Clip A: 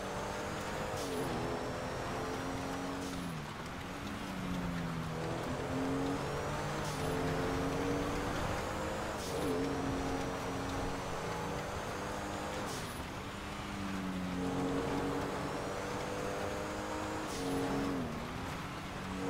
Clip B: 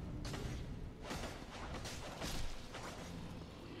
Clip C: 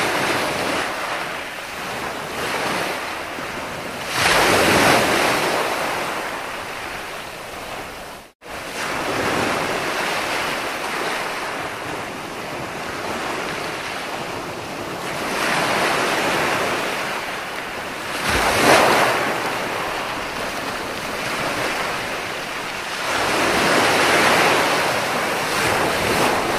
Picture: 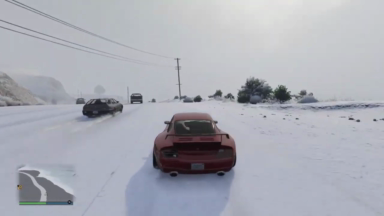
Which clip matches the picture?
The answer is A